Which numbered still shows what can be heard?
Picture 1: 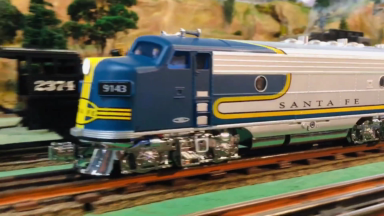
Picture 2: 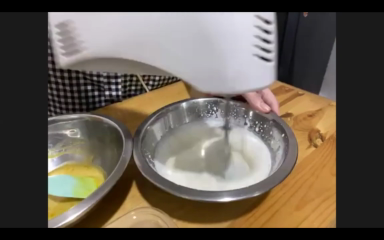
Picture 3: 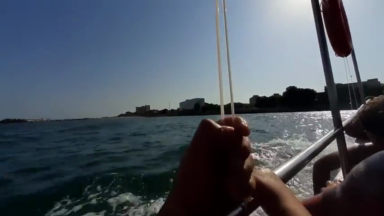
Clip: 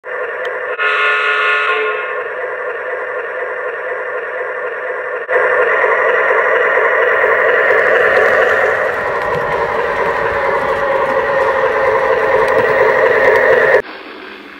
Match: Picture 1